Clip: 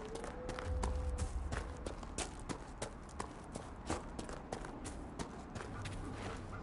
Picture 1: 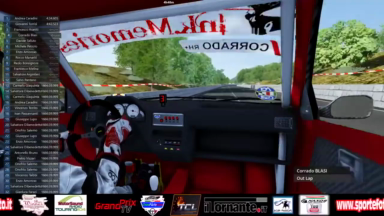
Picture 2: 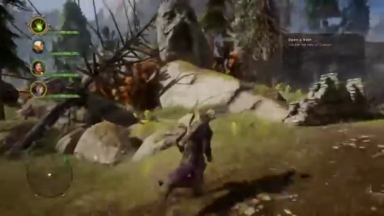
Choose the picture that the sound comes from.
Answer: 2